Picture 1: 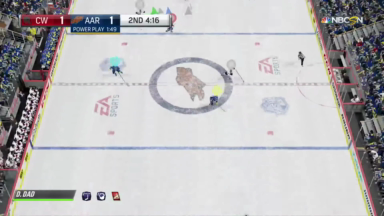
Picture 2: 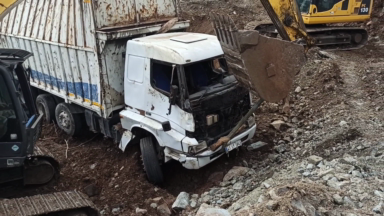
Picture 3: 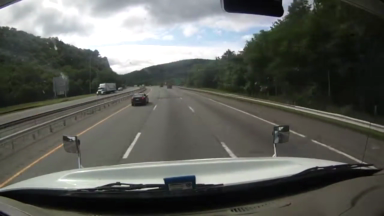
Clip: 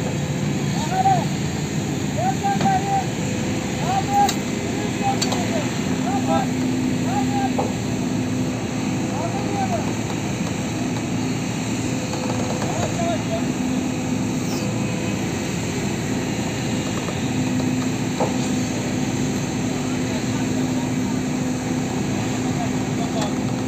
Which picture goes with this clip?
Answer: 2